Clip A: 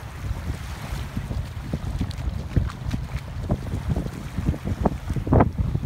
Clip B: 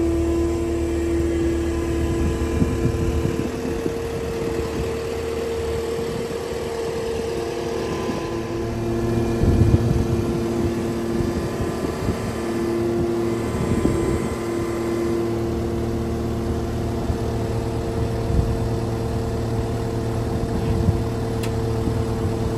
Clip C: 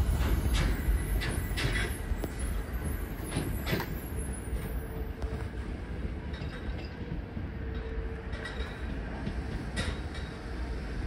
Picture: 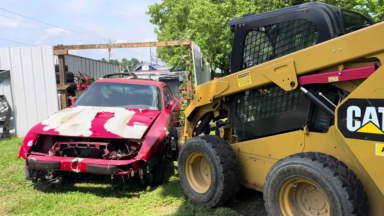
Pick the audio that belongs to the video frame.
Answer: B